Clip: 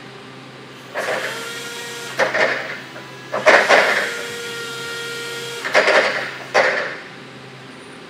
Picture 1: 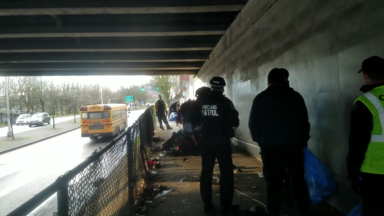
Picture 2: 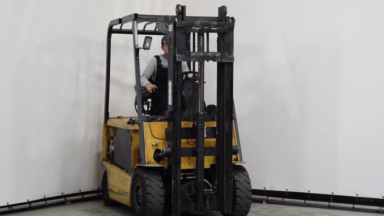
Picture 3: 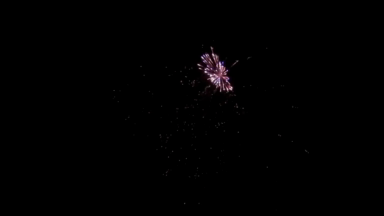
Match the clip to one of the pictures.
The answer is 2